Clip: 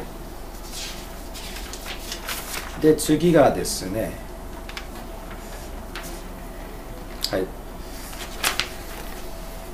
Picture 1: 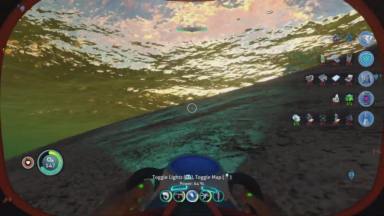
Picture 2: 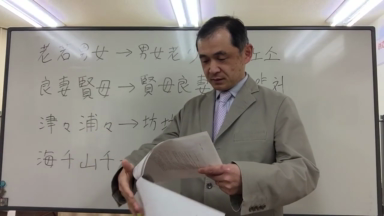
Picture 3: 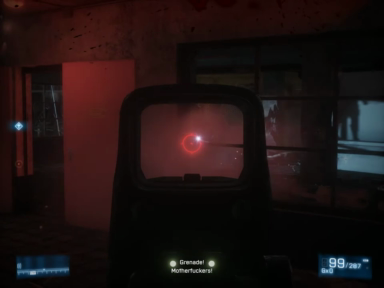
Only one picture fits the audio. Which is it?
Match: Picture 2